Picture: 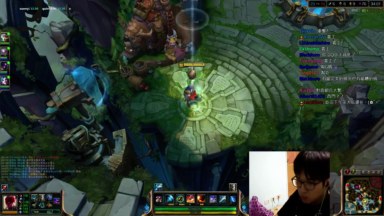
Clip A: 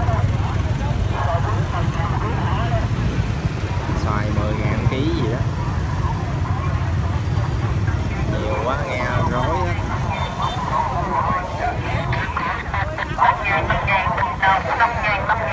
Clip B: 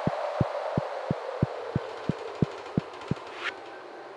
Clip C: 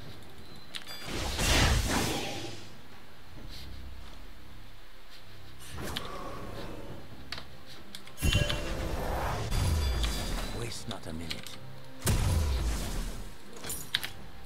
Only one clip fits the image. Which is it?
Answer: C